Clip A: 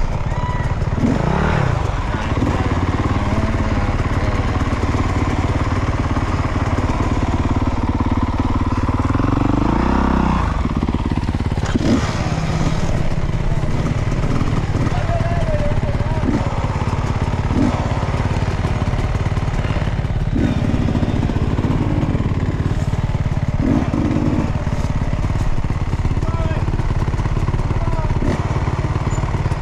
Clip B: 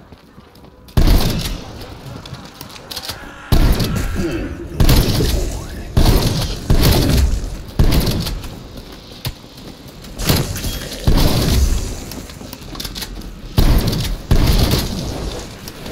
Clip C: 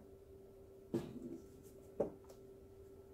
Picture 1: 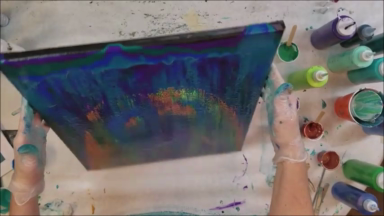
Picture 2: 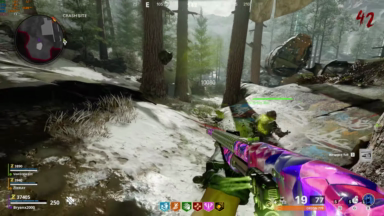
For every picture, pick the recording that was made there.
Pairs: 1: C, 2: B